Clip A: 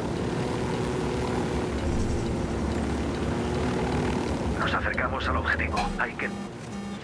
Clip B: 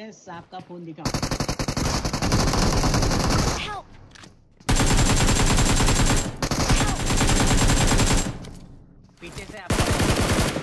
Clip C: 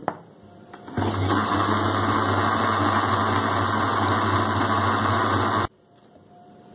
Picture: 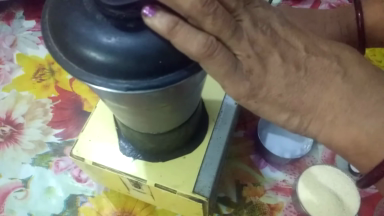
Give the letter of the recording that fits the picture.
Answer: C